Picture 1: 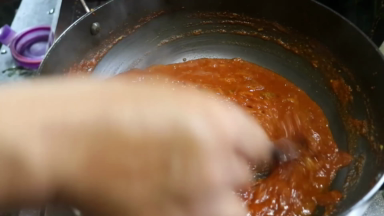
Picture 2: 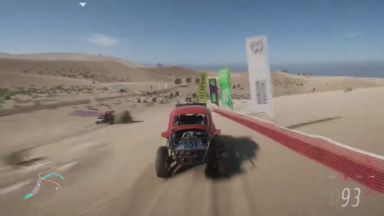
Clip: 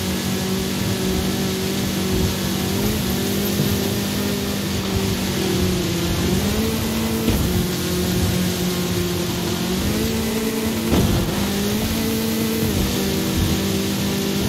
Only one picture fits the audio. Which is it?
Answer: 2